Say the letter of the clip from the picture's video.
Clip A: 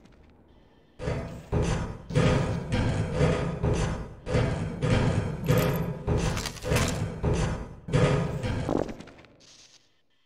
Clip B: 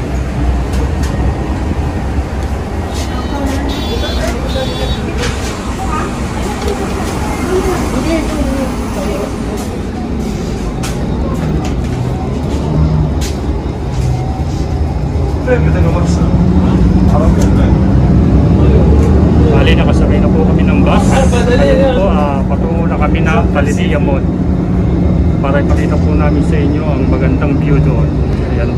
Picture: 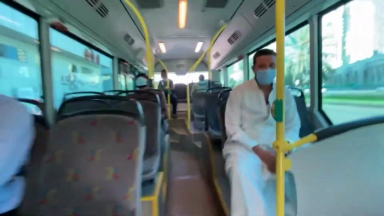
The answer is B